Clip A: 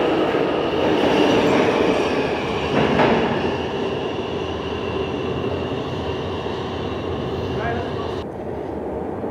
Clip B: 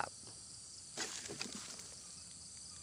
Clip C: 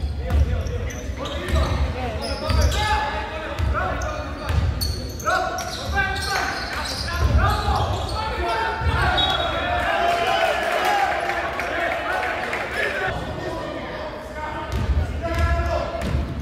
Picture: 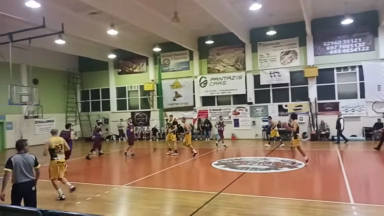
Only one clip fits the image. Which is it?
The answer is C